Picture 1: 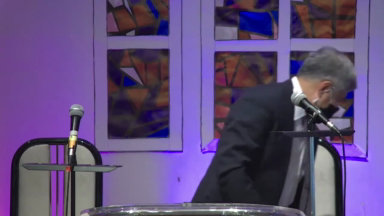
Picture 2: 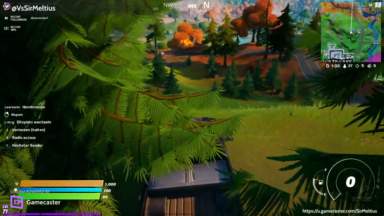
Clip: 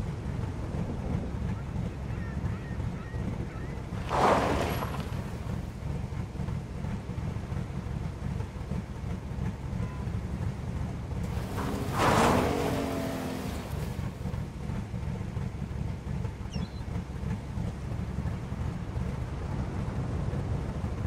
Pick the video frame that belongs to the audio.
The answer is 2